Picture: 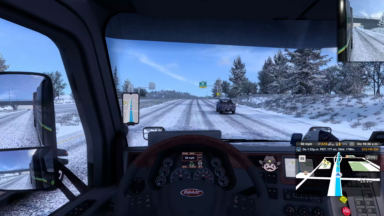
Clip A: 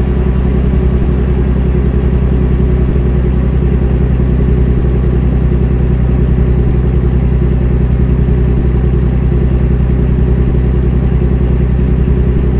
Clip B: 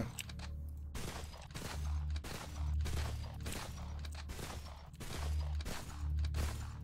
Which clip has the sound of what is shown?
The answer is A